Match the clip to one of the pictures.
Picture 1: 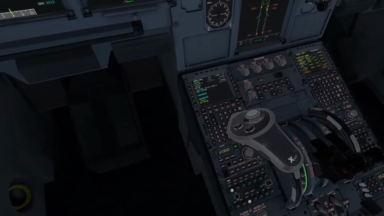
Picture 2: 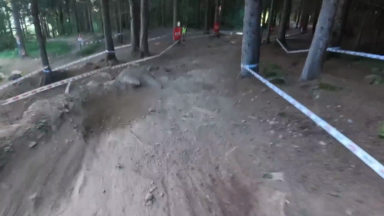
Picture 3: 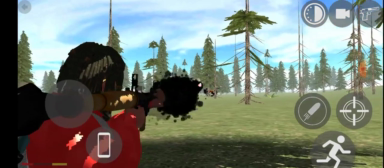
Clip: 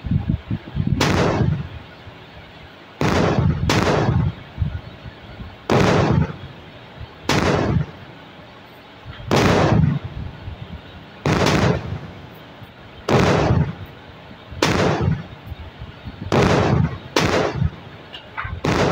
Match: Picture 3